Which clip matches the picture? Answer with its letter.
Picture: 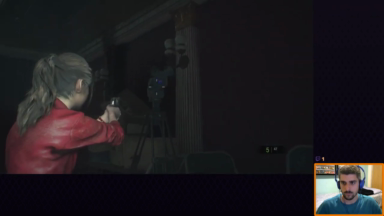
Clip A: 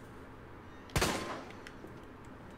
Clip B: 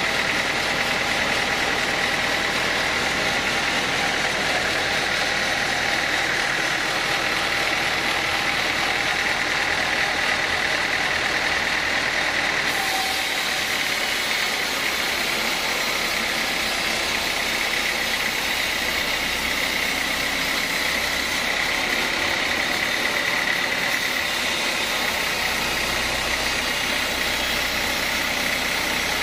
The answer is A